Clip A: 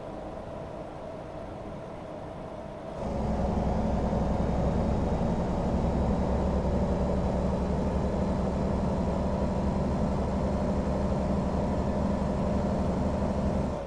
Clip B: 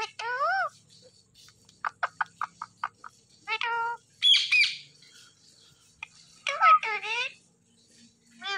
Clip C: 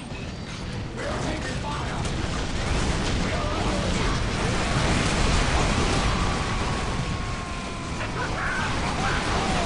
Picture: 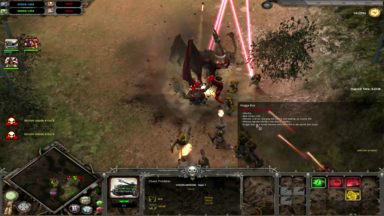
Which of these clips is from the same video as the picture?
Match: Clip C